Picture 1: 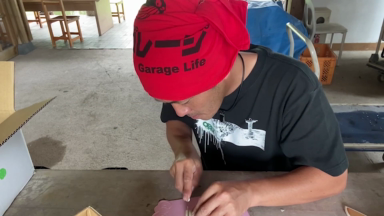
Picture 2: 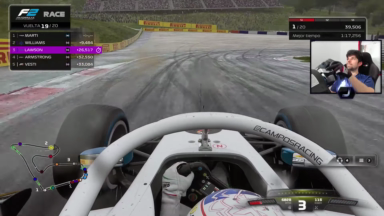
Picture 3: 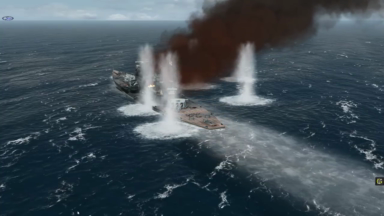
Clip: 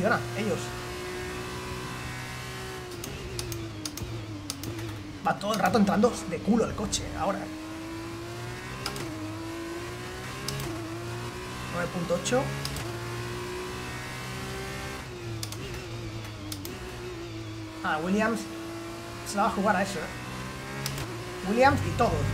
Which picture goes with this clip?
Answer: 2